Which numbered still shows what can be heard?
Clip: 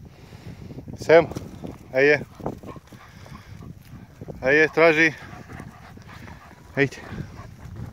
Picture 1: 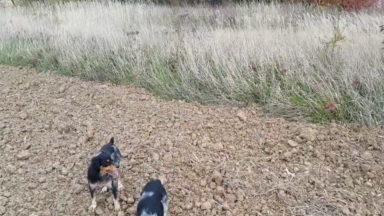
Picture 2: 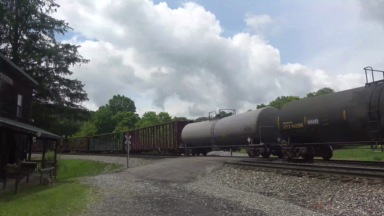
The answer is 1